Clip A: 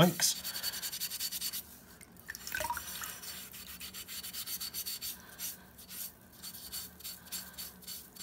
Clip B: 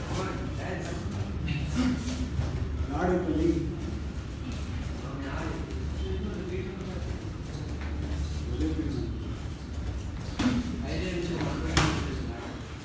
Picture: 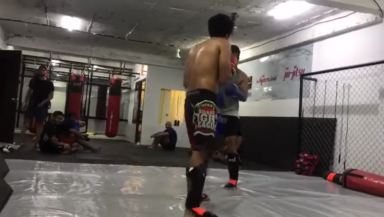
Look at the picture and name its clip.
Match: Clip B